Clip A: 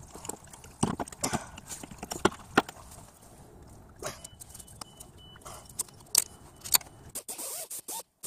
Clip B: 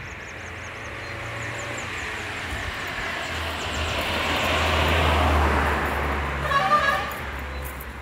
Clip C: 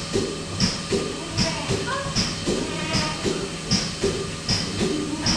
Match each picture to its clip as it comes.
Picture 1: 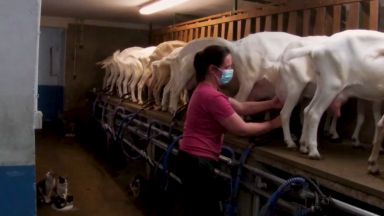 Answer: C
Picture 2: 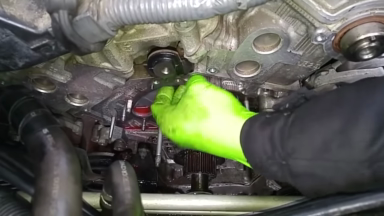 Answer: A